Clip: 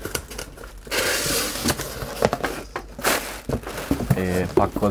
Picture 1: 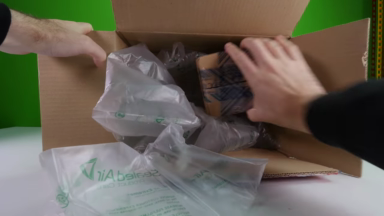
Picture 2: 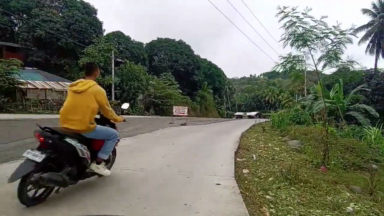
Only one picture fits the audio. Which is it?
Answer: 1